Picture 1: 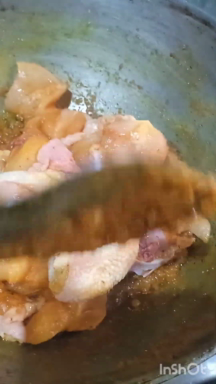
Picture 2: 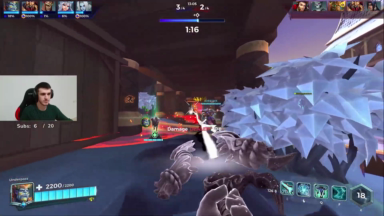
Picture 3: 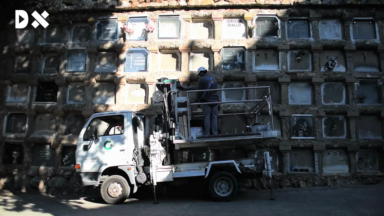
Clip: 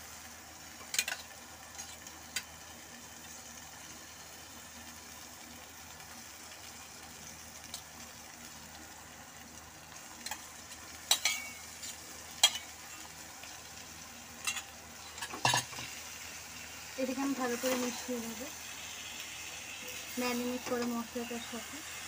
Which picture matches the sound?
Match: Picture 1